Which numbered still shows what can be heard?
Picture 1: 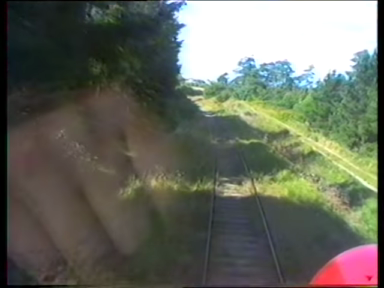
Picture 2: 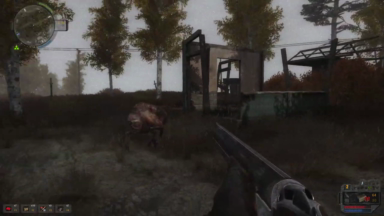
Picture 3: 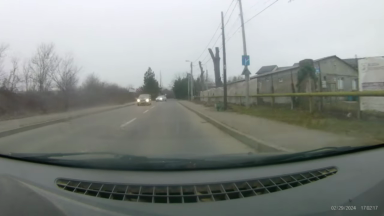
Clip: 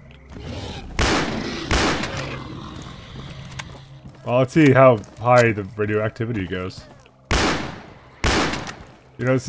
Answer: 2